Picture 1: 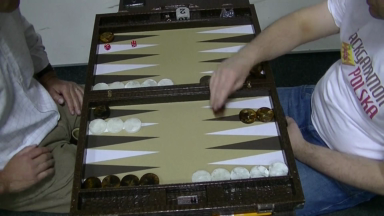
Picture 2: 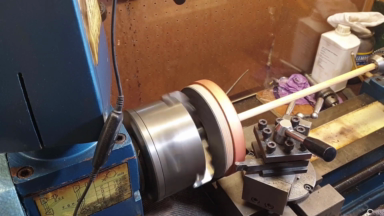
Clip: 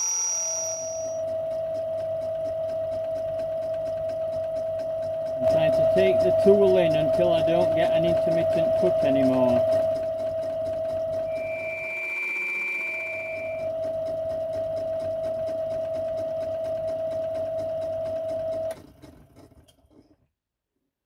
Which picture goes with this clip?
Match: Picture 2